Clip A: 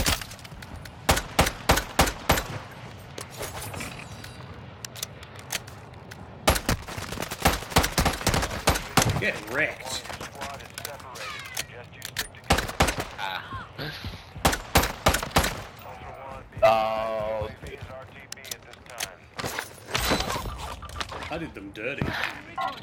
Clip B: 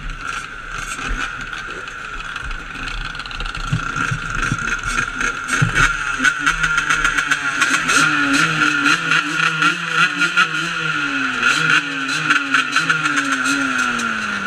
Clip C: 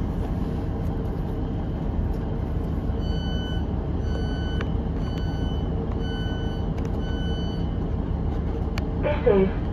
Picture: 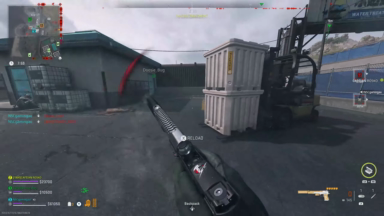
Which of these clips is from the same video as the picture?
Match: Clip A